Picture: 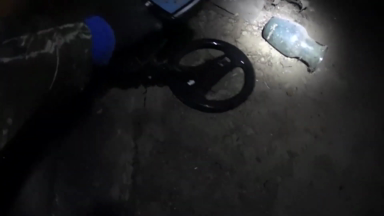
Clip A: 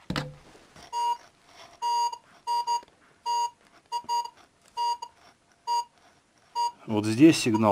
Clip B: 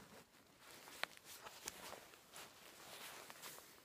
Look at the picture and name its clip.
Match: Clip A